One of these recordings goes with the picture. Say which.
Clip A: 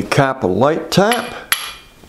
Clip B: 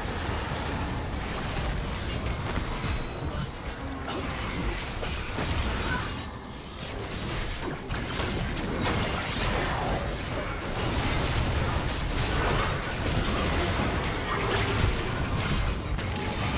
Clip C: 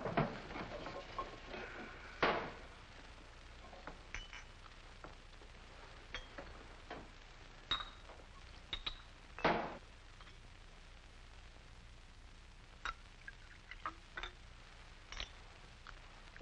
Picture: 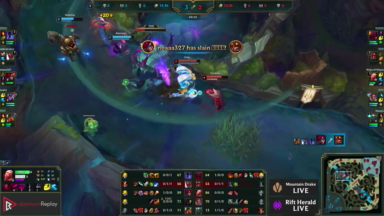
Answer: B